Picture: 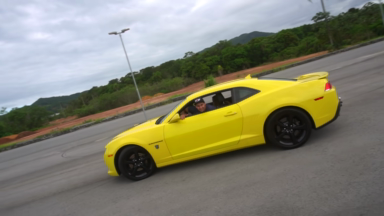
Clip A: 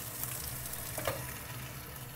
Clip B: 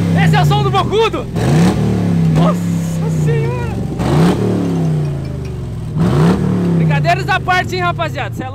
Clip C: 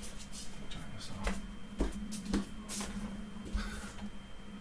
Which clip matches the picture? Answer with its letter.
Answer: B